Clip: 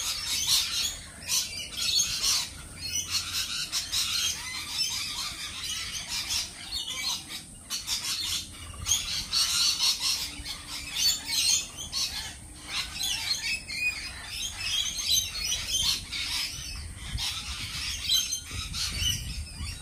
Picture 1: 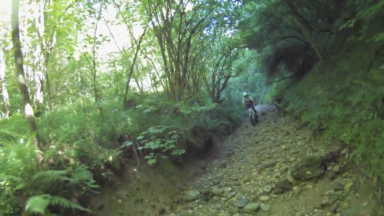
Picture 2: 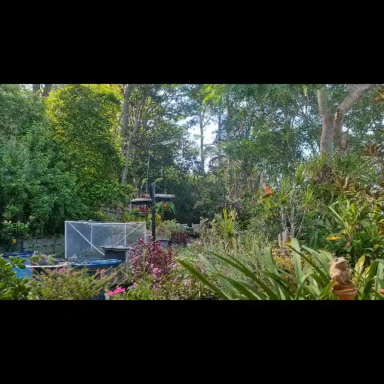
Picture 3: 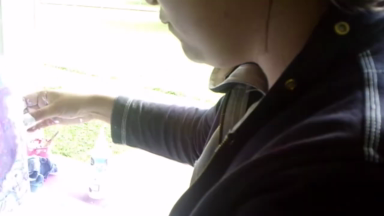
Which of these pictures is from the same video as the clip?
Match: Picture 2